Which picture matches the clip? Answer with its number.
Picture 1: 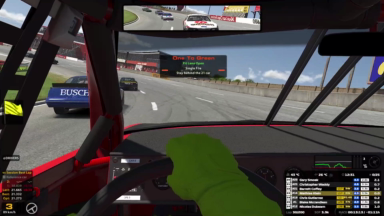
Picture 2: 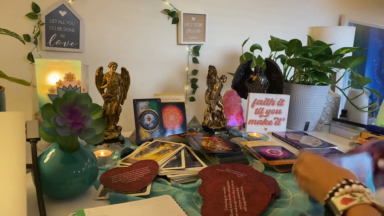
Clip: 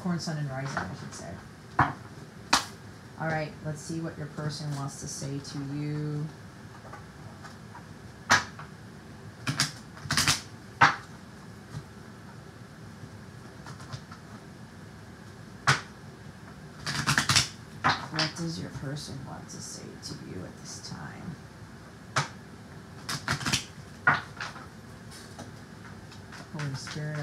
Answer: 2